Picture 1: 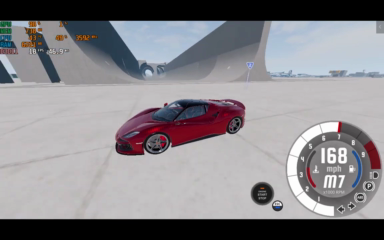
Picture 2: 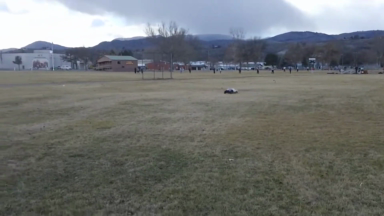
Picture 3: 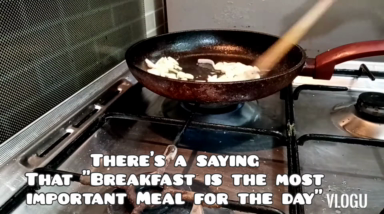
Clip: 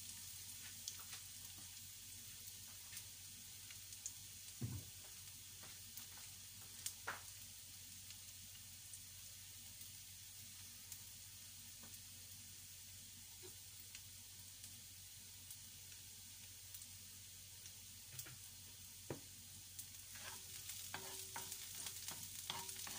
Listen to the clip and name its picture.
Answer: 3